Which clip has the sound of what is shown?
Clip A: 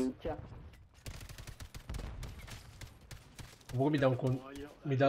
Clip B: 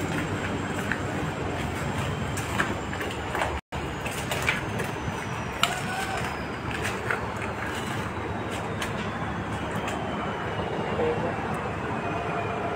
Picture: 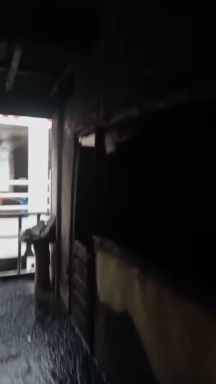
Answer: B